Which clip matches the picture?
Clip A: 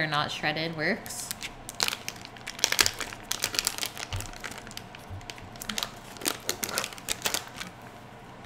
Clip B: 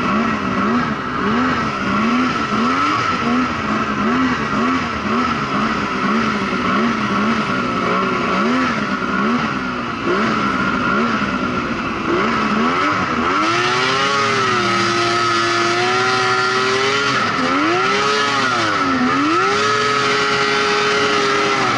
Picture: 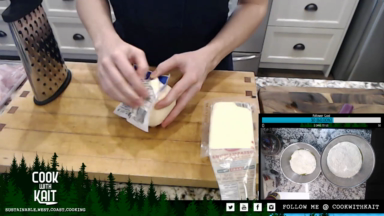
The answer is A